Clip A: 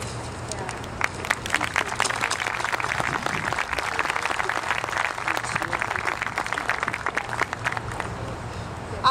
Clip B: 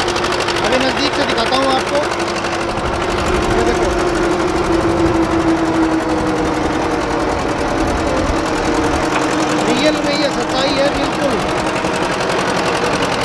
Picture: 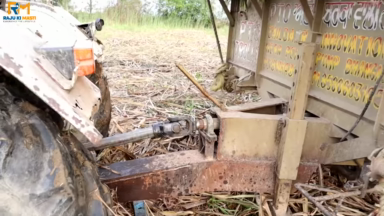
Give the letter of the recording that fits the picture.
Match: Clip B